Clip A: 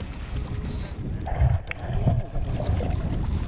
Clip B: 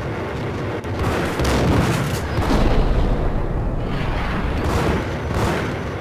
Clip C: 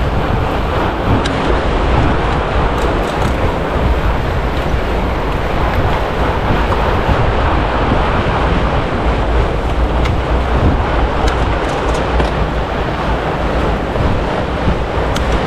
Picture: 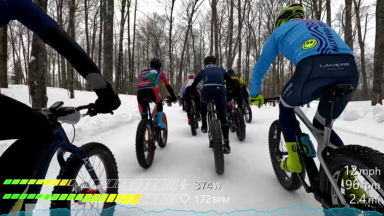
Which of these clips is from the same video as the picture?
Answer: C